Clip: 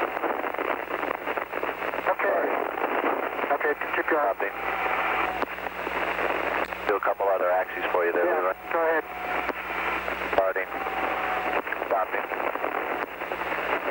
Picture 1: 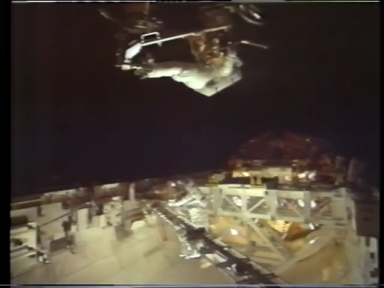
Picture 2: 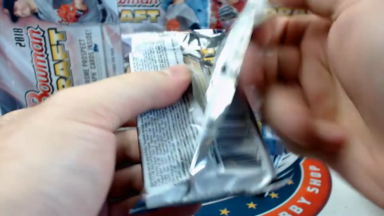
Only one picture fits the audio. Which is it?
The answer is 1